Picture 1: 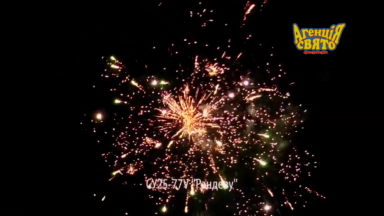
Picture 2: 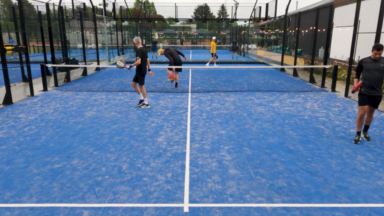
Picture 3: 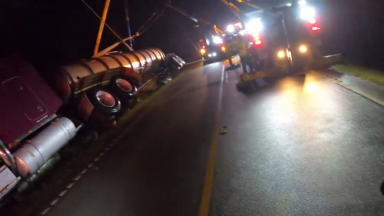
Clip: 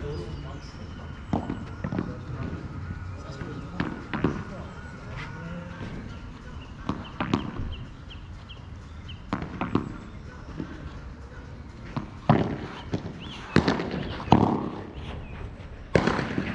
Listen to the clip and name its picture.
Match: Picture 2